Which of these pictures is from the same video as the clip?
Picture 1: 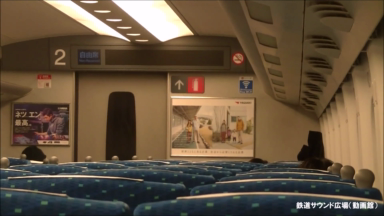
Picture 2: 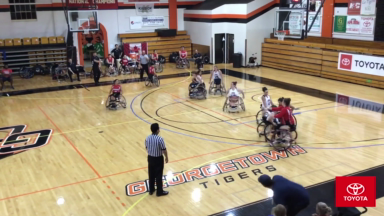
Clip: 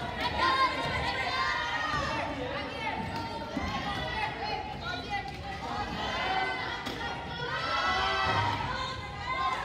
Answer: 2